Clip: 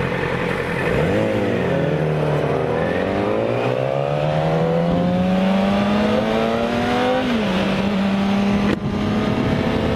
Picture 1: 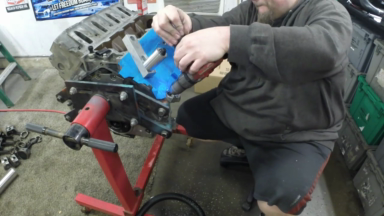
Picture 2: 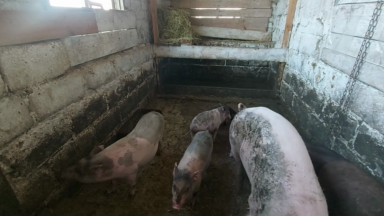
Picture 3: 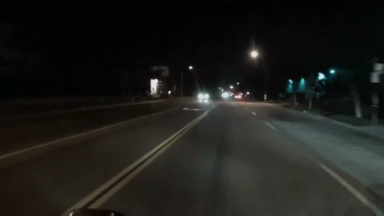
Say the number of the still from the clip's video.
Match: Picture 3